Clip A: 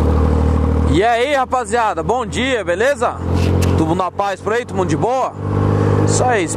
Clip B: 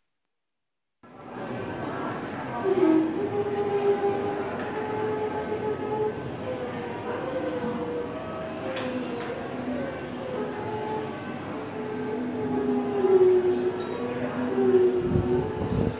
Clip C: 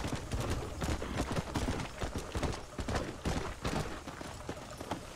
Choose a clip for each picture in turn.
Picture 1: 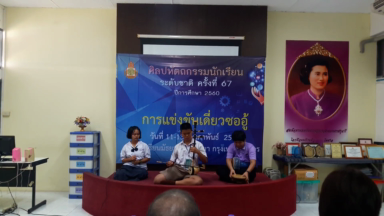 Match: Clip B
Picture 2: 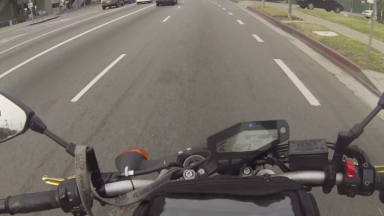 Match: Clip A